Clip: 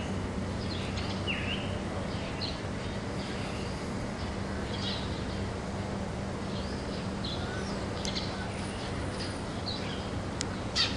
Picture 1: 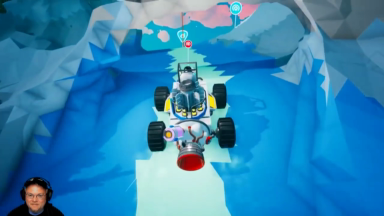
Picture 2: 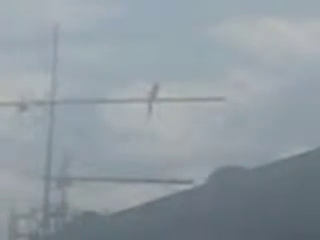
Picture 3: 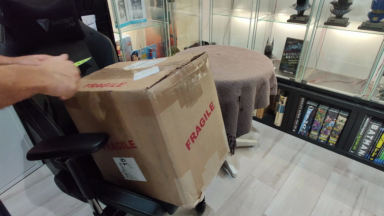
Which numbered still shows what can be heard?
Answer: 2